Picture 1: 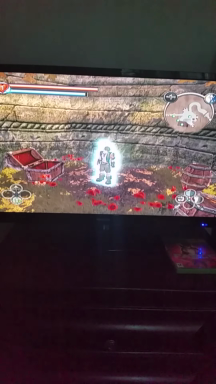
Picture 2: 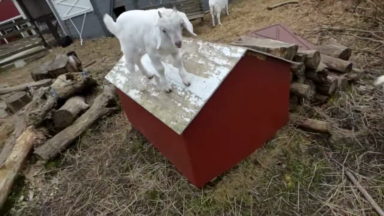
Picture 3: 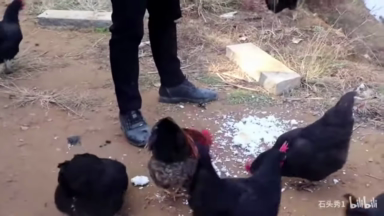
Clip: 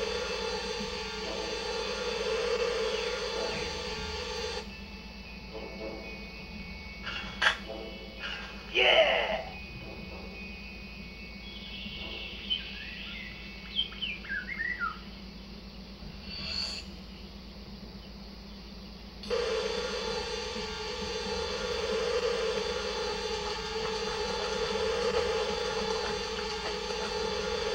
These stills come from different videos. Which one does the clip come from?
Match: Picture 1